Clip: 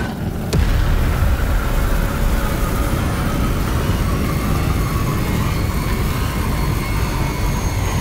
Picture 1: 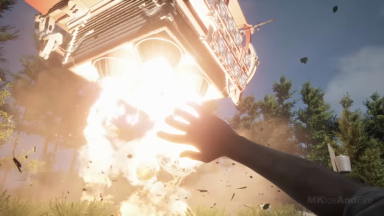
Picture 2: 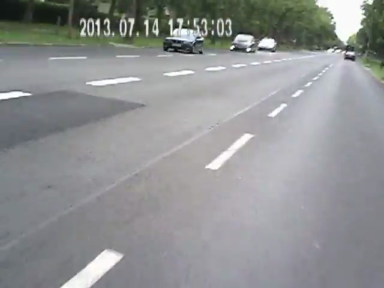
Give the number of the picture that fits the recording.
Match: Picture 1